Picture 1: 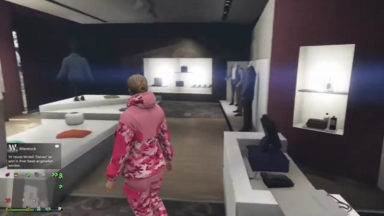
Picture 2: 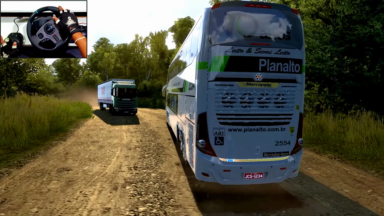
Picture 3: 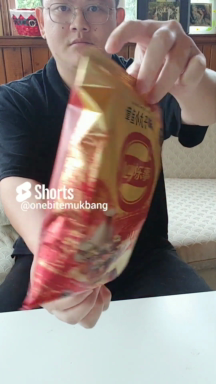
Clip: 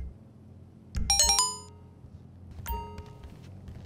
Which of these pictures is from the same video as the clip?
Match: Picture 1